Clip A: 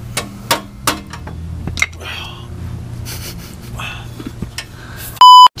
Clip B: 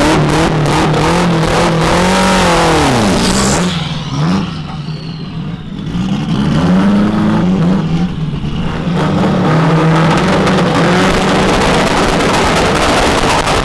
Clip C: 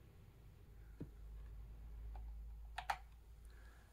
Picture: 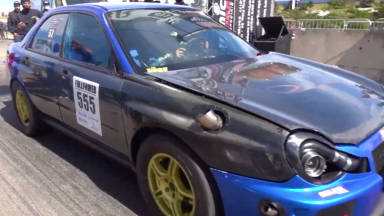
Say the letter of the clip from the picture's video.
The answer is B